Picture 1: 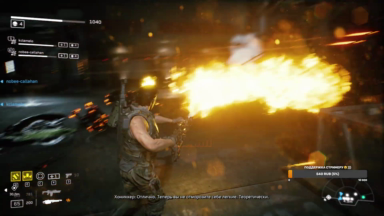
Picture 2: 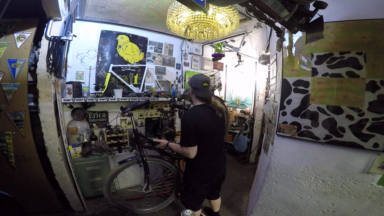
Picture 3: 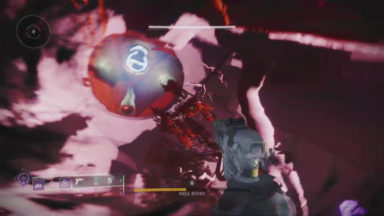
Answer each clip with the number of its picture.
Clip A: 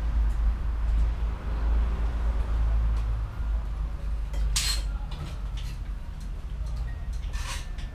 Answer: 2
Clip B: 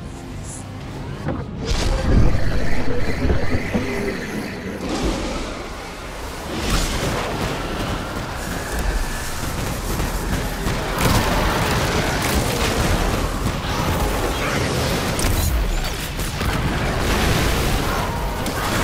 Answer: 3